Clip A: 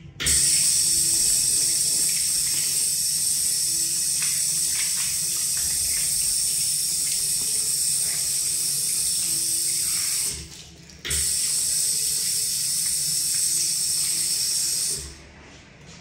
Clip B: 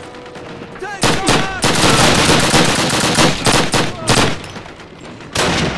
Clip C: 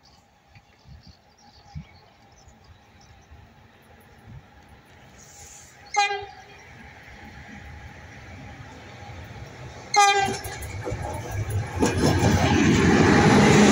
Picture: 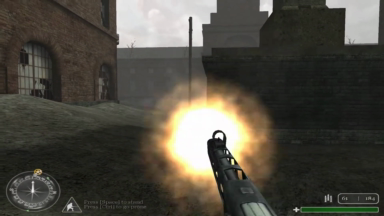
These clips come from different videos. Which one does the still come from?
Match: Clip B